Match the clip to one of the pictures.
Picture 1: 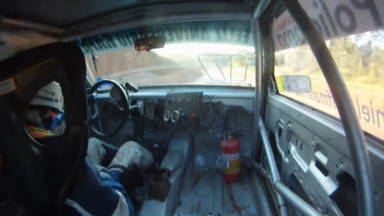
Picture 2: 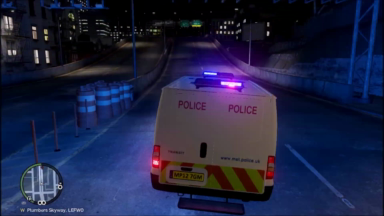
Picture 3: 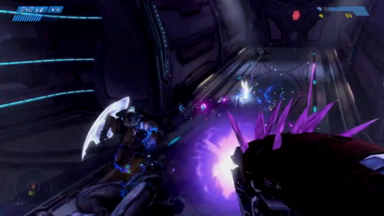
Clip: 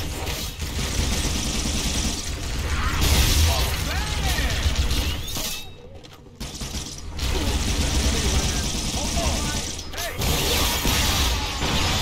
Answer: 3